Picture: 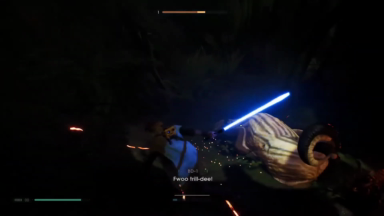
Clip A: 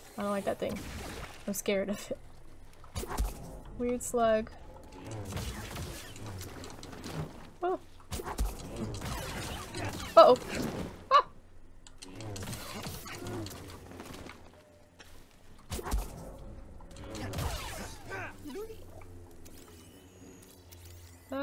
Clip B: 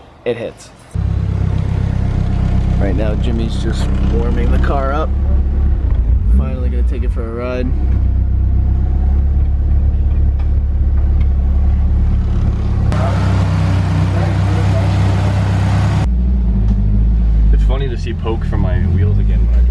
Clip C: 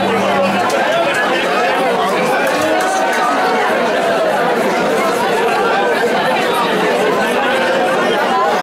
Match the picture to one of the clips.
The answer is A